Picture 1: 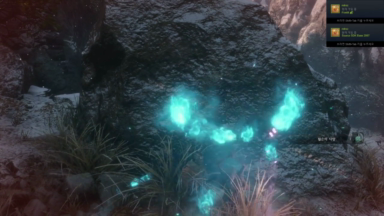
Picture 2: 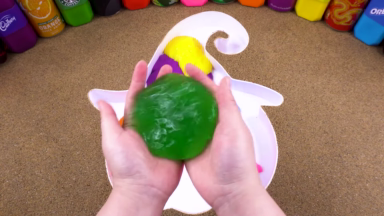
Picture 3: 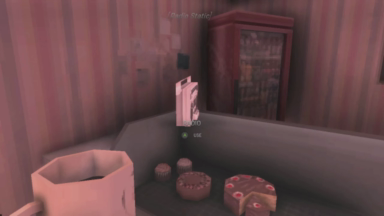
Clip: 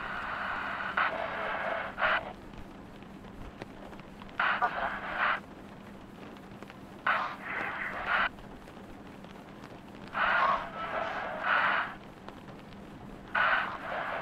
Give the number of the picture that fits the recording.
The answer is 3